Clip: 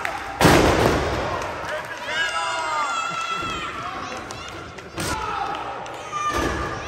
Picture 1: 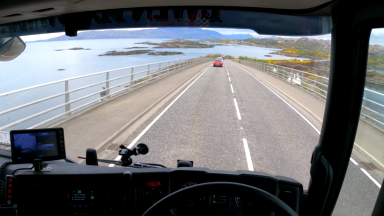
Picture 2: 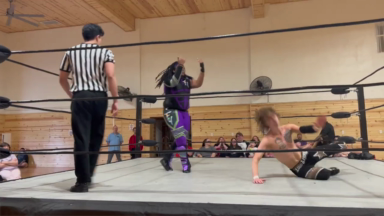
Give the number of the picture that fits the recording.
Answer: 2